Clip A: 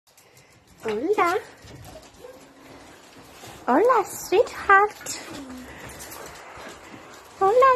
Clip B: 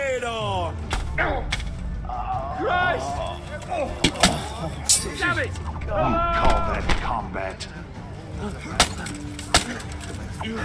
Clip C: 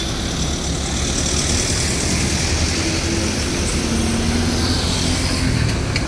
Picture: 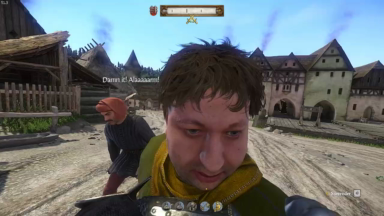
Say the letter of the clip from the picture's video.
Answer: B